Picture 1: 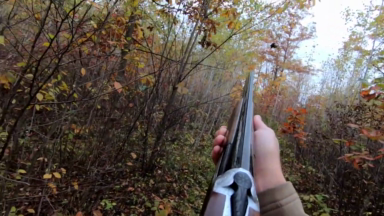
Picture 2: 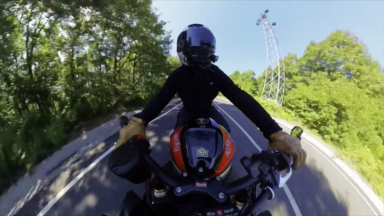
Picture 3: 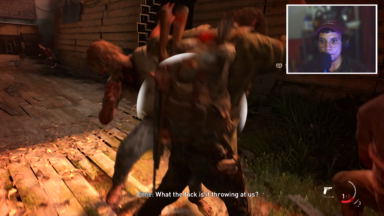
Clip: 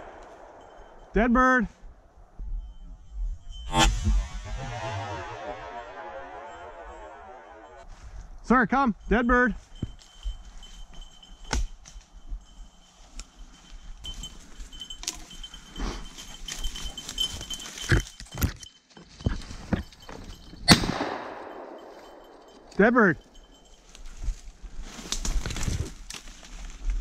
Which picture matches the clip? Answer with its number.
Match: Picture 1